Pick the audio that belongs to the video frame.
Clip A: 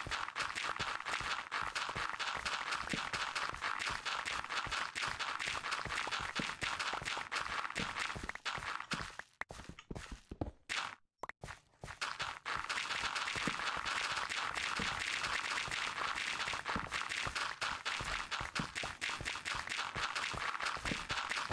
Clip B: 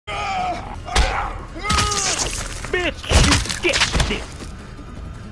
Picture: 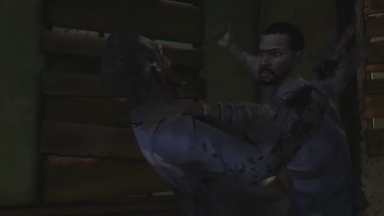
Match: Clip B